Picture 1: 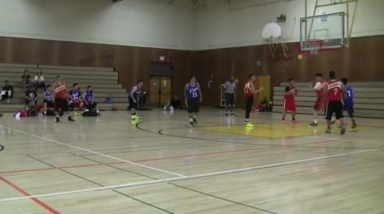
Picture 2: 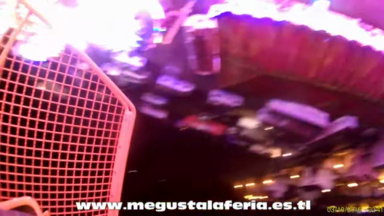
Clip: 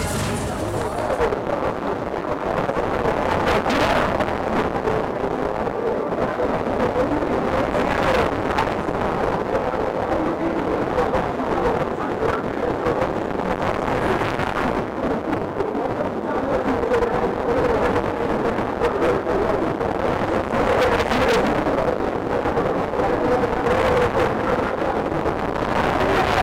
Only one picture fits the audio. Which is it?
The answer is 2